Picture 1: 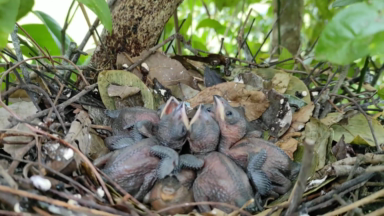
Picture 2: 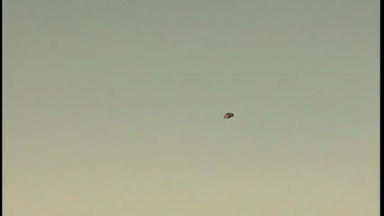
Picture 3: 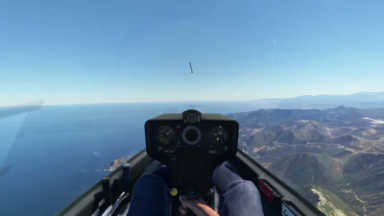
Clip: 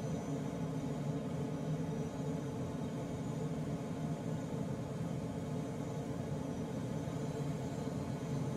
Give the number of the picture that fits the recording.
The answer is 3